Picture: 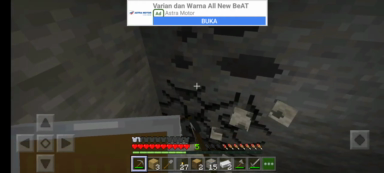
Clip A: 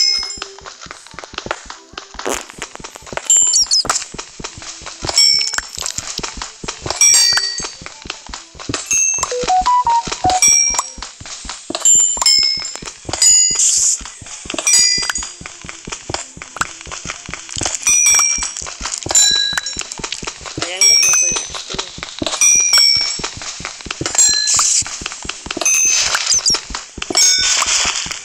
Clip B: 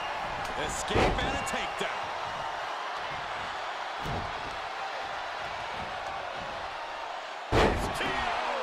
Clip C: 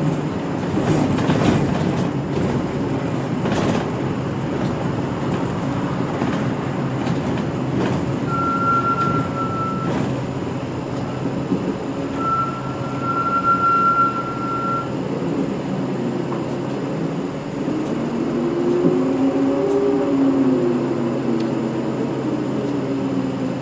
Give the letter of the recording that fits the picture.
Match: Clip A